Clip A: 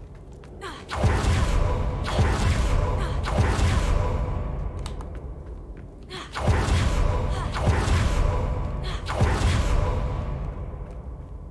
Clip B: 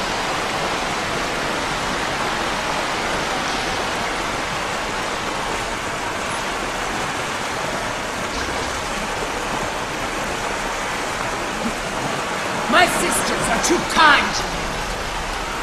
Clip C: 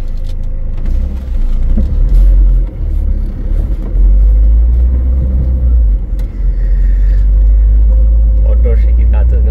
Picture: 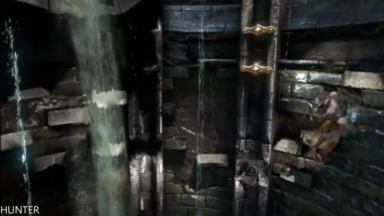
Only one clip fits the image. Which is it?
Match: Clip B